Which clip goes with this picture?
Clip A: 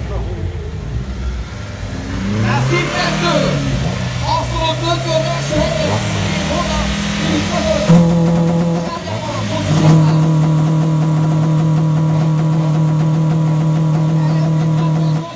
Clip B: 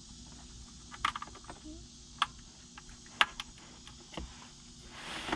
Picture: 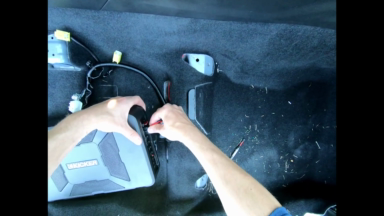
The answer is B